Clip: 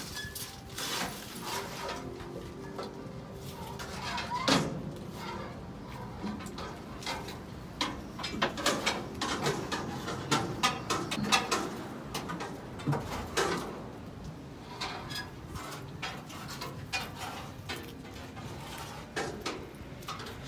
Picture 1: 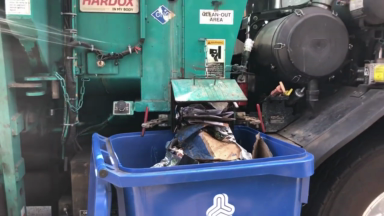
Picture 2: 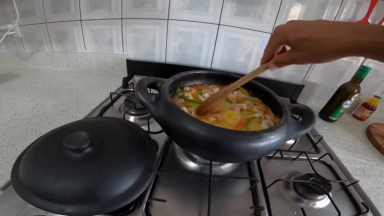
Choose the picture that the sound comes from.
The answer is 1